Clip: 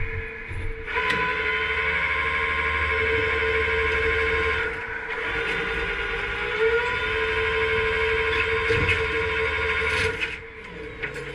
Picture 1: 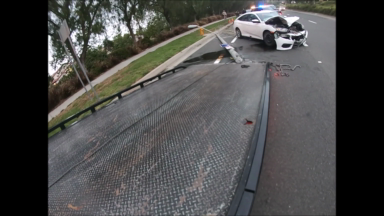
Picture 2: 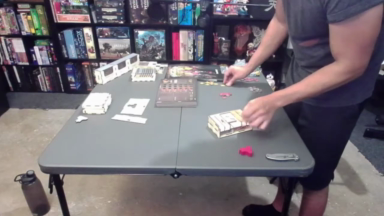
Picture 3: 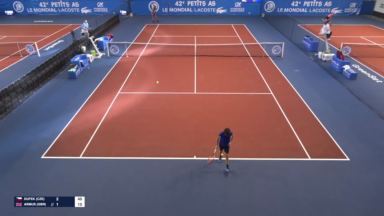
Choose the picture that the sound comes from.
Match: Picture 1